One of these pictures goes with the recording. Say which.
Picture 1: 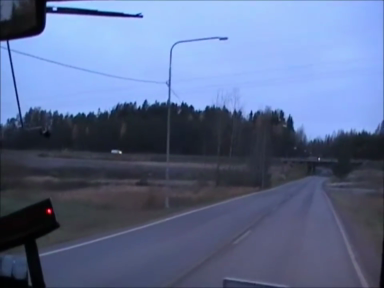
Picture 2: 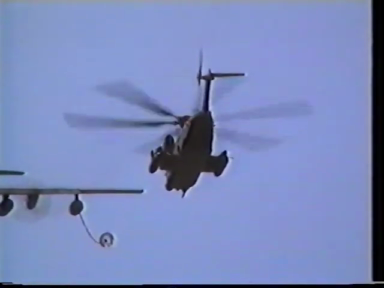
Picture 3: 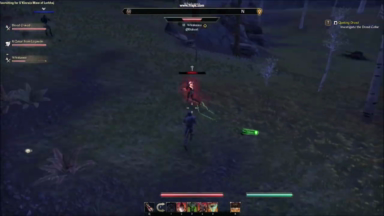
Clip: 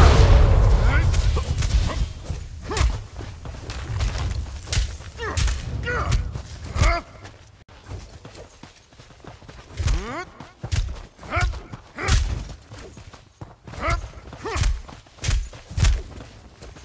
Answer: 3